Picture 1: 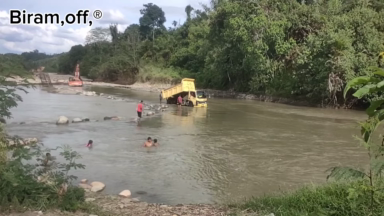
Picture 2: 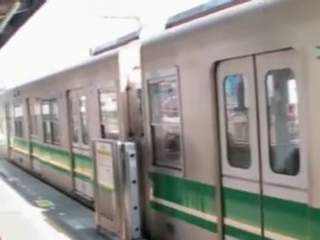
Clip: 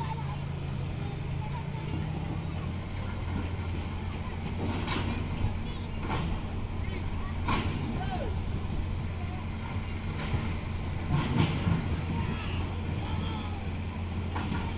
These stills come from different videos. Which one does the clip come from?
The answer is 1